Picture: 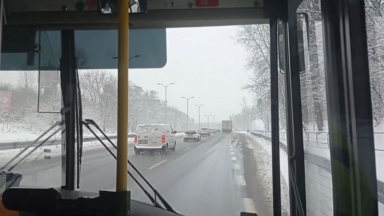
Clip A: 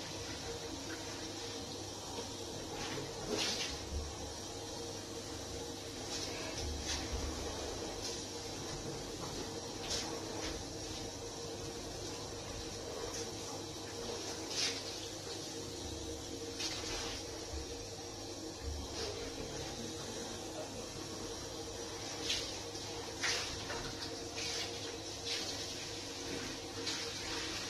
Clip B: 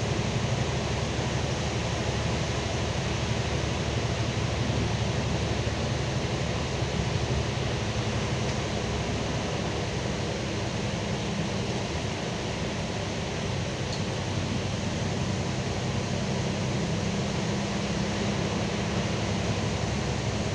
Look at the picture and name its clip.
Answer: B